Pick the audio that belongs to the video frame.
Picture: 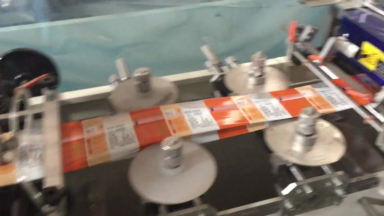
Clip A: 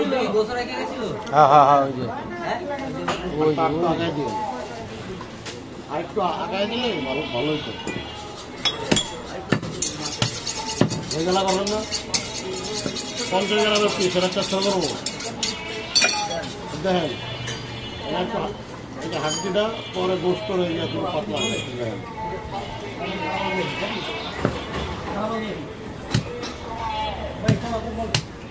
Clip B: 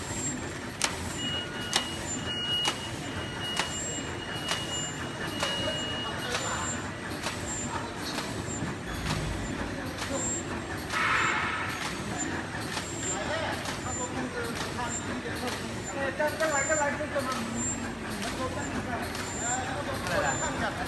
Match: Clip B